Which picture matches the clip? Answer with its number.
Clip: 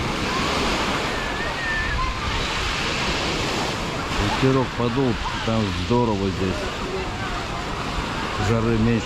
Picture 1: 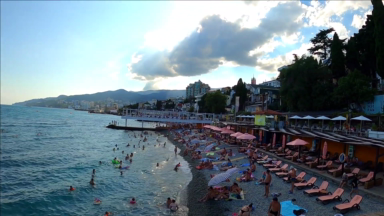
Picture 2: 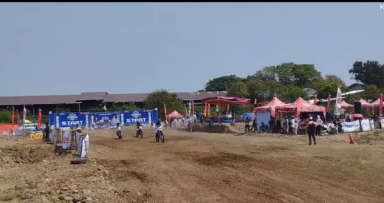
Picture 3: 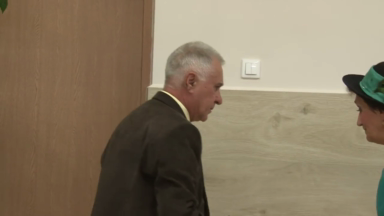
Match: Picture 1